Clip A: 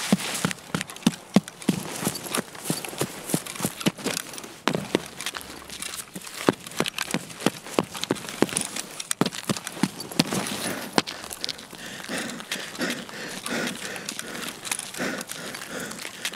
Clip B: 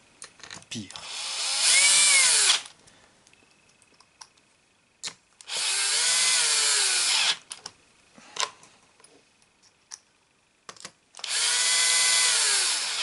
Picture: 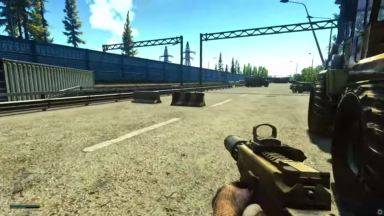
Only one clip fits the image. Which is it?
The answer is A